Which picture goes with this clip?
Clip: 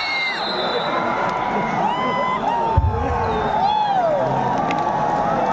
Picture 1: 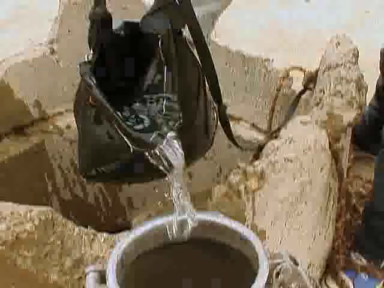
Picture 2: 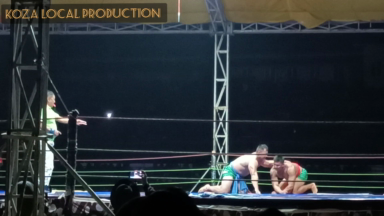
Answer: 2